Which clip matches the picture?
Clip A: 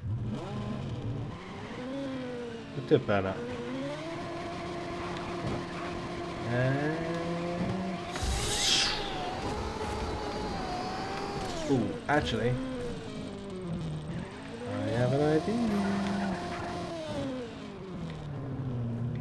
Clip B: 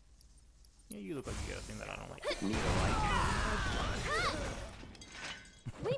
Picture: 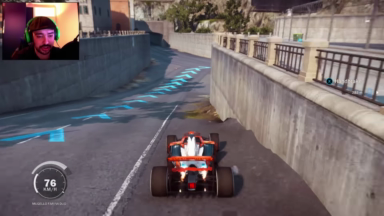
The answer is A